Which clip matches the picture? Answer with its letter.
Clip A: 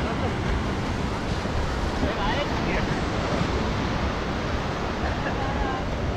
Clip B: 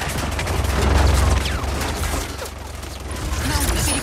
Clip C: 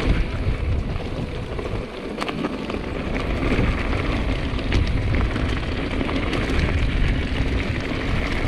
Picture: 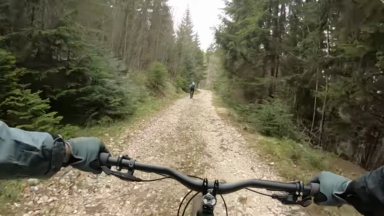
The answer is C